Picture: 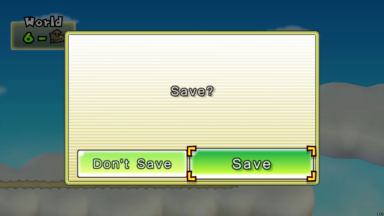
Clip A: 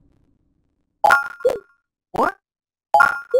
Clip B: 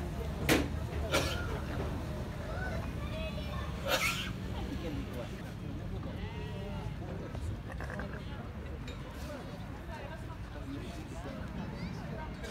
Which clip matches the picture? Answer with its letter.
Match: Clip A